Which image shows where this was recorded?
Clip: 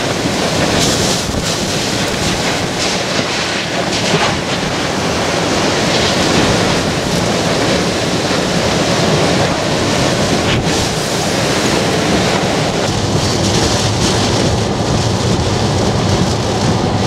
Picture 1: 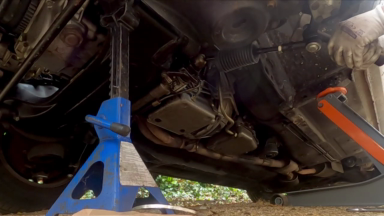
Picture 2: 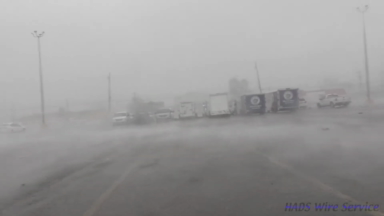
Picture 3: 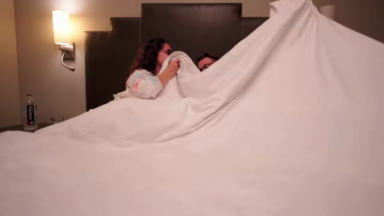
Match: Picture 2